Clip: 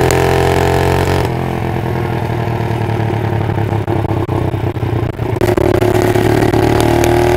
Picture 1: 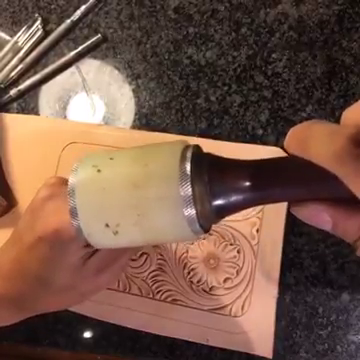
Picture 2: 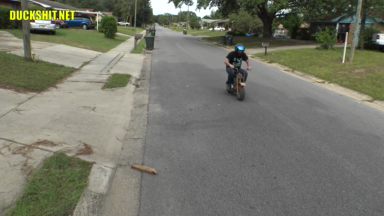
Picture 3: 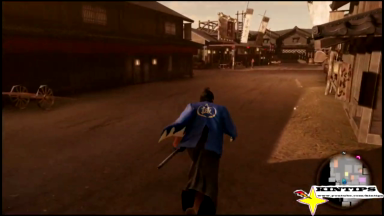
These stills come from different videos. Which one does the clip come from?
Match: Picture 2